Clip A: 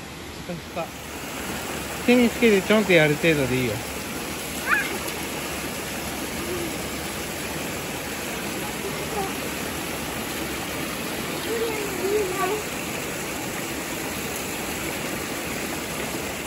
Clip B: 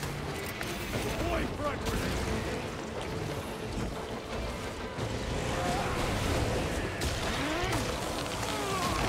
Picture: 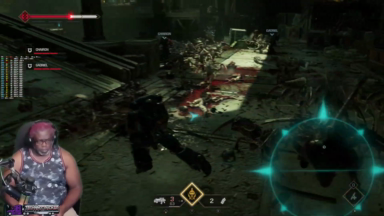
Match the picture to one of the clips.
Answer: B